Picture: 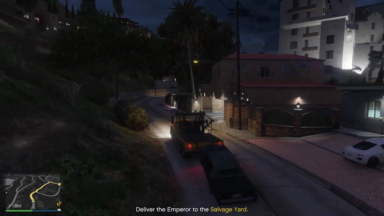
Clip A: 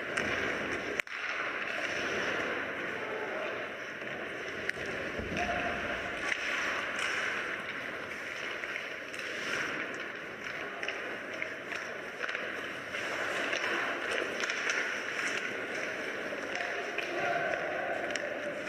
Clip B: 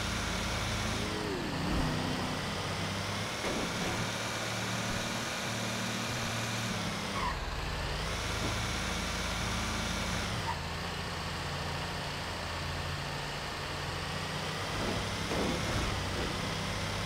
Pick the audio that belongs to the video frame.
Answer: B